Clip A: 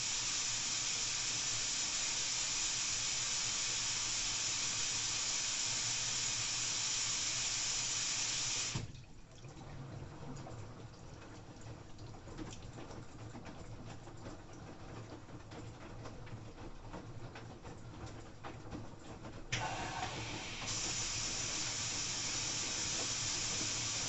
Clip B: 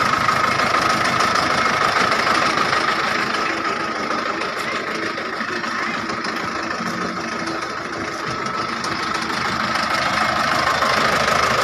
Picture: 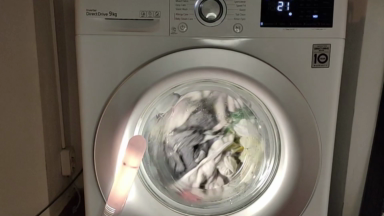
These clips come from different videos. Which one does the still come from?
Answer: A